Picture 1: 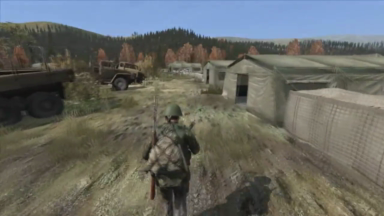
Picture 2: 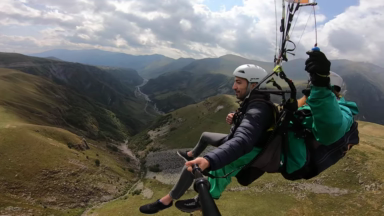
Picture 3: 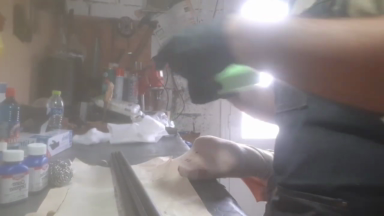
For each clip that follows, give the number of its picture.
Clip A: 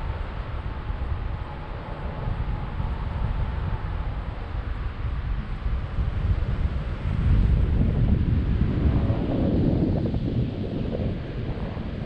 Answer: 2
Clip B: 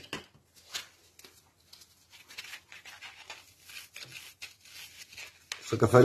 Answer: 3